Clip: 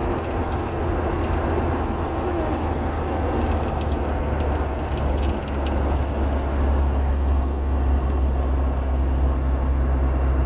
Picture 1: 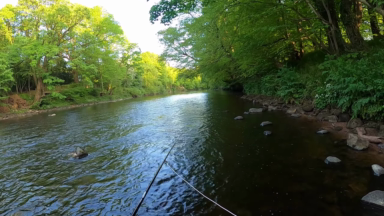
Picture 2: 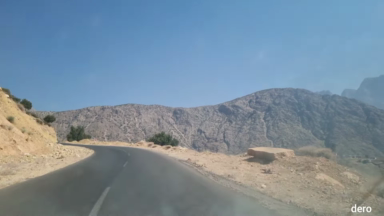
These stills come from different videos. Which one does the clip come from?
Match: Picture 2